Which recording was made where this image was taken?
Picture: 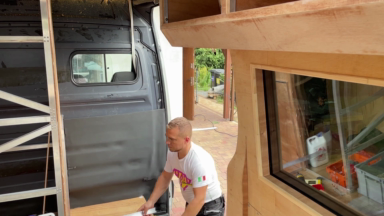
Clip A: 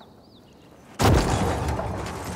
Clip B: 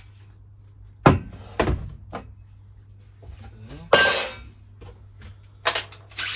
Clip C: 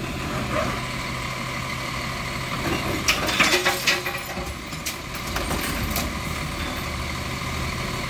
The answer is B